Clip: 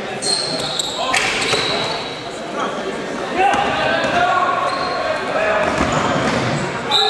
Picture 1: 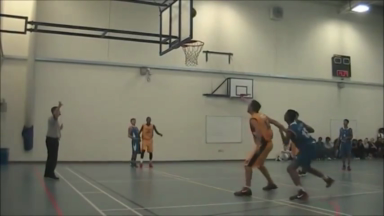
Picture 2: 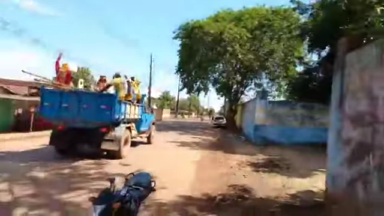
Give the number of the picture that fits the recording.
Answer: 1